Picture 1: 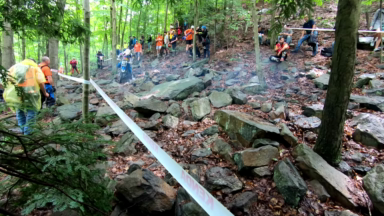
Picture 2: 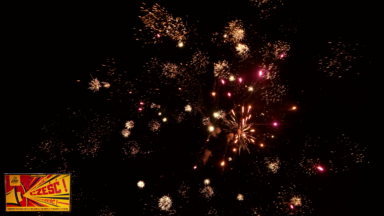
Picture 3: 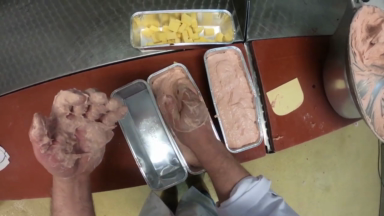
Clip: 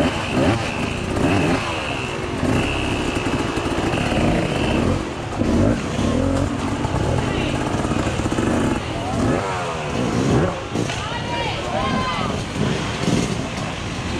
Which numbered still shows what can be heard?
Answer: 1